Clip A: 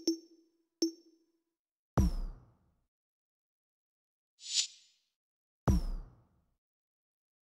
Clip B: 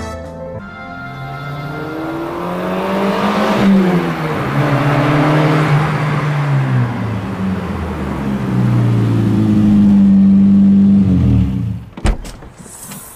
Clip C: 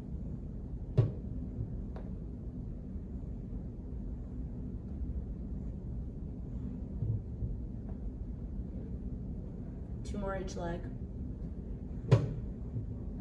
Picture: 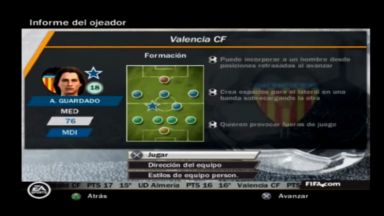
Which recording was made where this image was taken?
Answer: A